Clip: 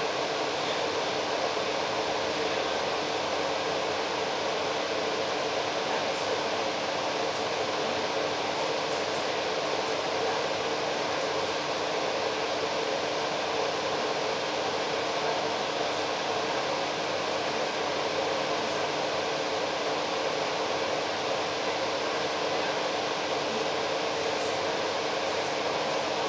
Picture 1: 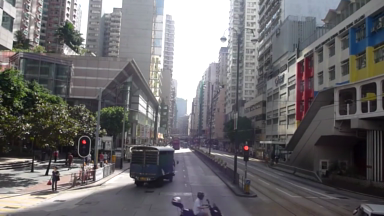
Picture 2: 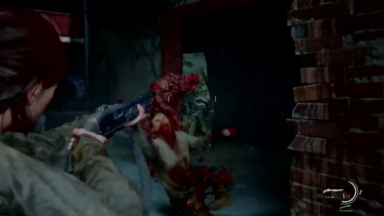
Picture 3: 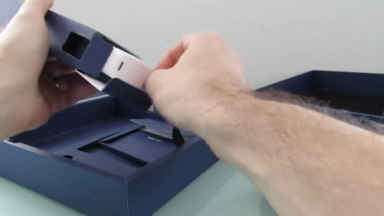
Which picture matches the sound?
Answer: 1